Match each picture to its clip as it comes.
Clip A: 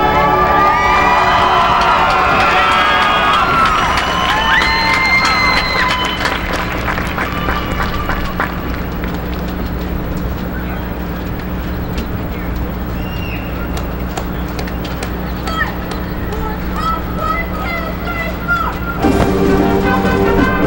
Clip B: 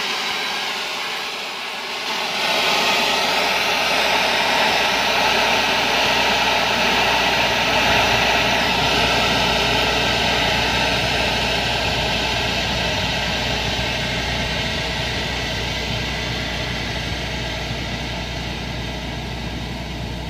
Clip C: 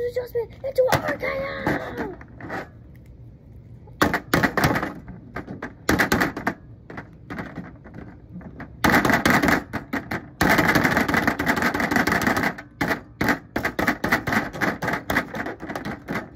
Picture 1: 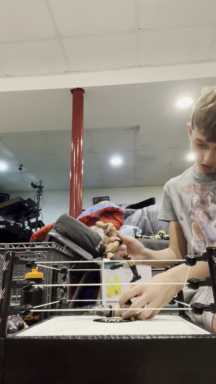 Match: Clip C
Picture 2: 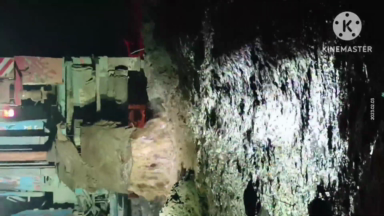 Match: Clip B